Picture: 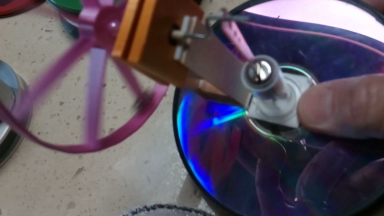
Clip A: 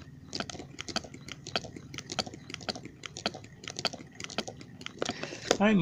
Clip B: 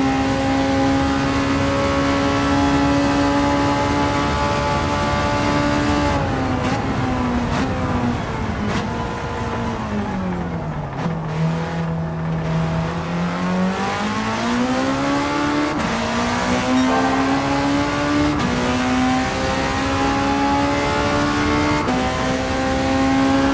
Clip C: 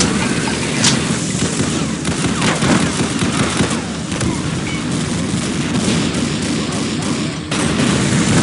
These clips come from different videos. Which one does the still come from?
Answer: A